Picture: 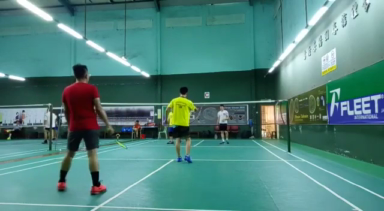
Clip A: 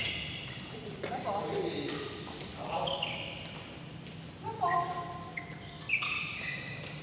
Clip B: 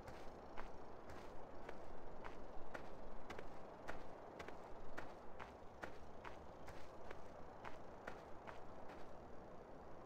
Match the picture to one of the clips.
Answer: A